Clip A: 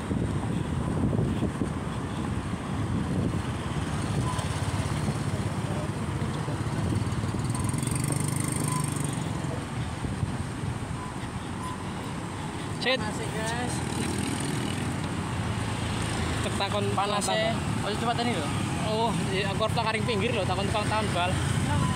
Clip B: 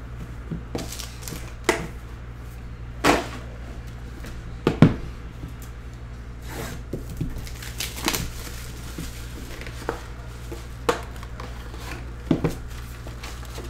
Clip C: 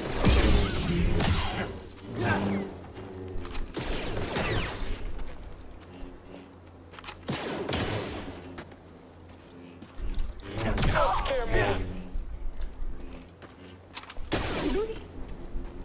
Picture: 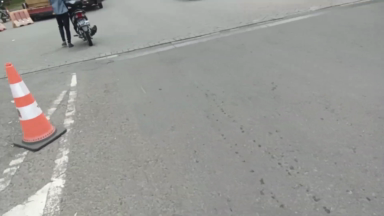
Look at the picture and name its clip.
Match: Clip A